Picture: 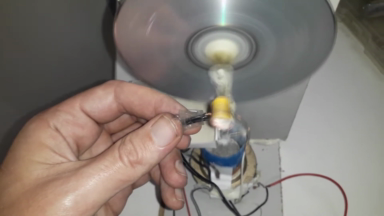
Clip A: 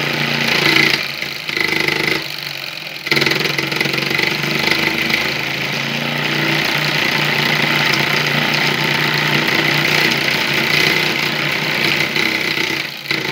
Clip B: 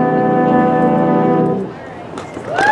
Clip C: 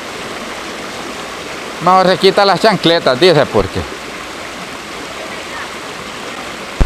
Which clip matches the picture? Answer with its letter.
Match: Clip A